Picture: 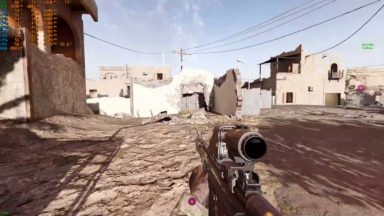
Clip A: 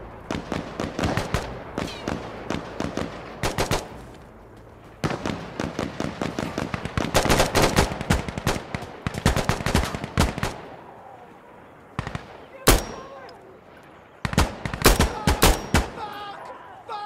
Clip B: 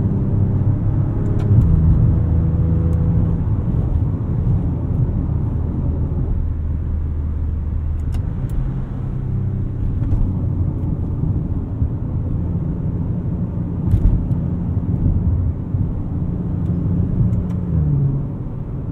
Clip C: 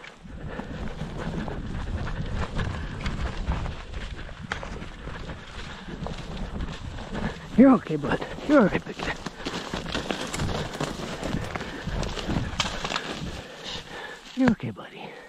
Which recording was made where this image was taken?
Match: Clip A